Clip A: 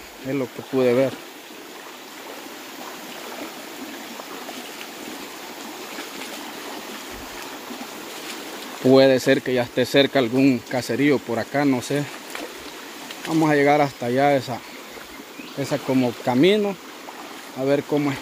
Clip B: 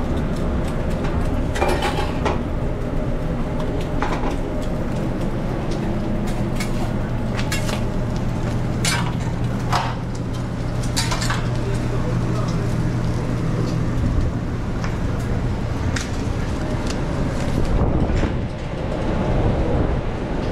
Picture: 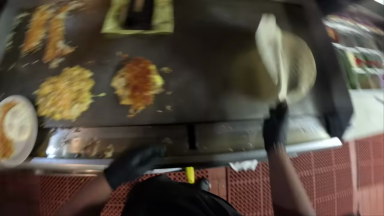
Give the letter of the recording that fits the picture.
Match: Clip B